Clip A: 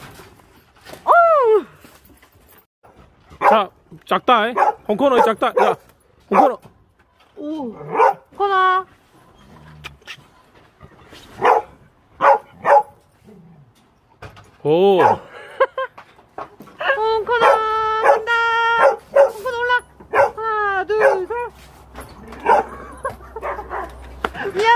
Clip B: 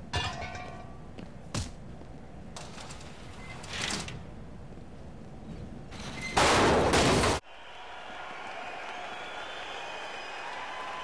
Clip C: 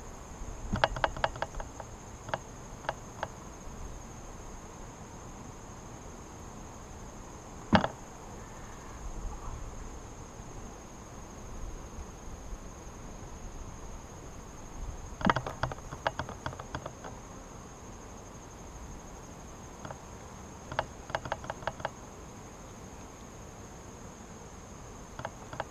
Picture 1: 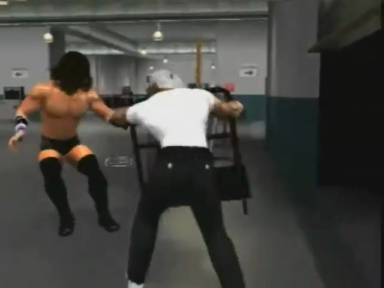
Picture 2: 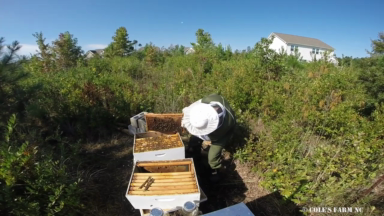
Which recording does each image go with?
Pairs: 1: B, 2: C